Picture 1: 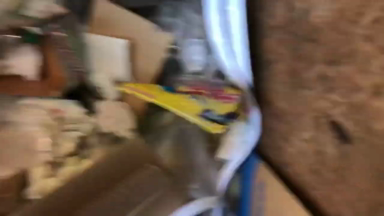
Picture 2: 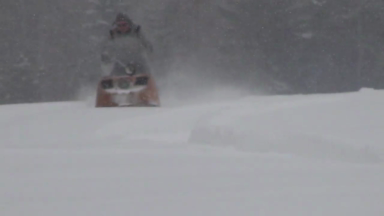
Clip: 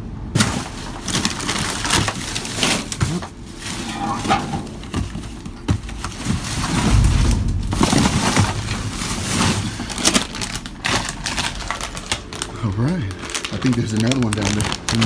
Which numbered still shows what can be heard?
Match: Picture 1